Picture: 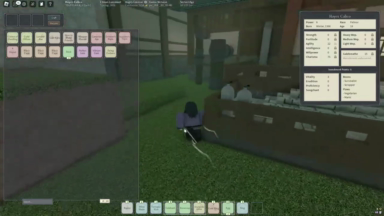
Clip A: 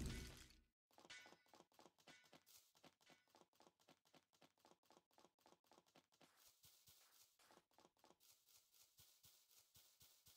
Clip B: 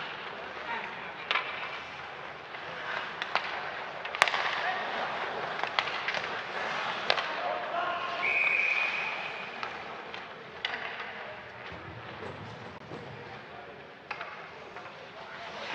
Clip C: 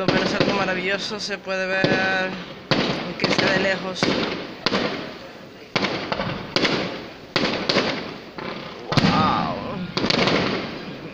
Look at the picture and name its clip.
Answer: A